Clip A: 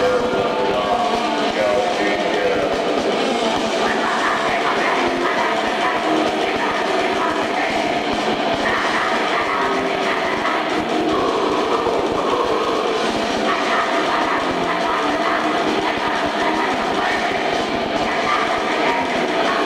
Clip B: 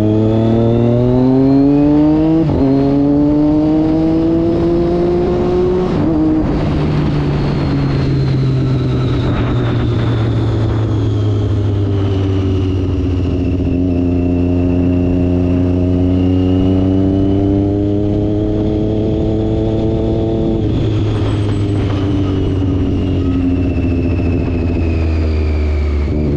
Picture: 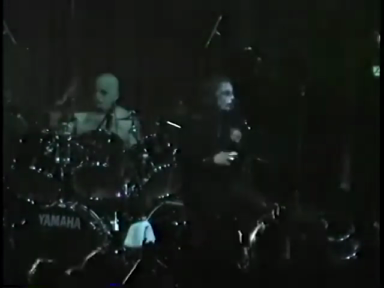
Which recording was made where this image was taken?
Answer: A